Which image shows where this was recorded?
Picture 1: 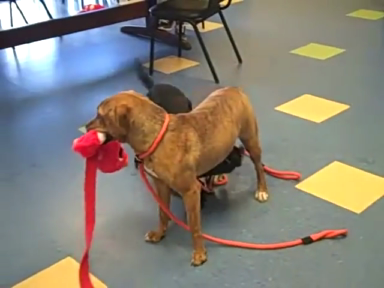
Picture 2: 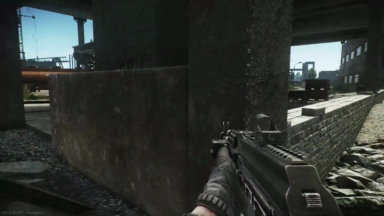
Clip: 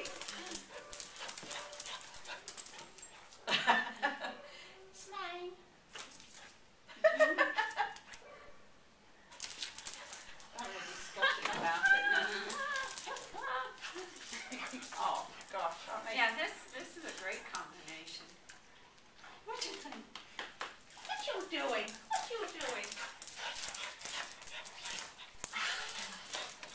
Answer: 1